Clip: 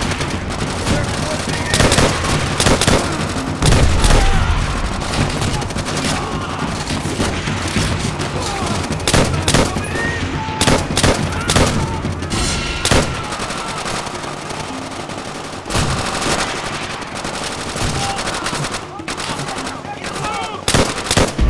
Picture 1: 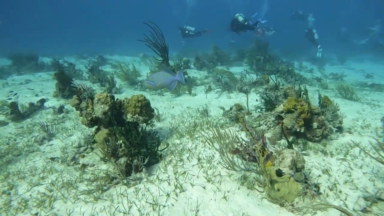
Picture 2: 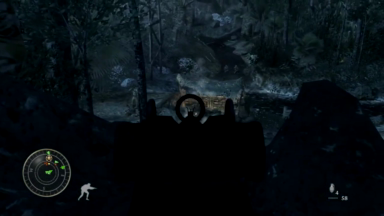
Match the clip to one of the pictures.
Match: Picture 2